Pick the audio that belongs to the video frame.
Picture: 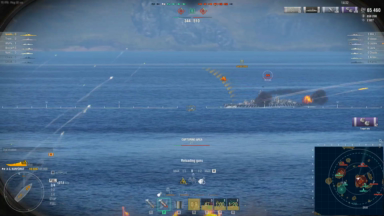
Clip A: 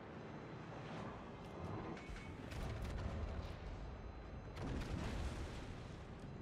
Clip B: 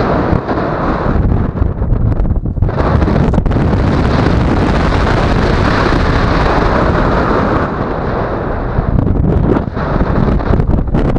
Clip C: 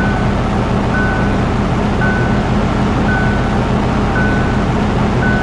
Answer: A